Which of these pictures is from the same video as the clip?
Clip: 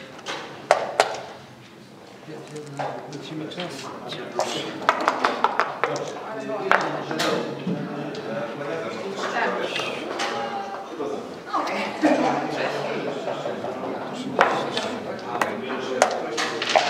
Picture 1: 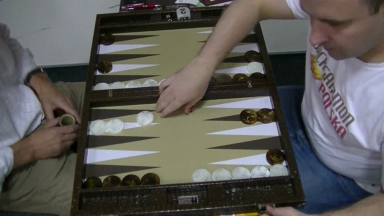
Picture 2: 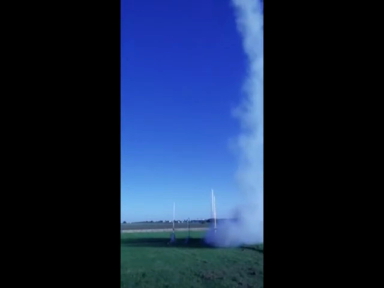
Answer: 1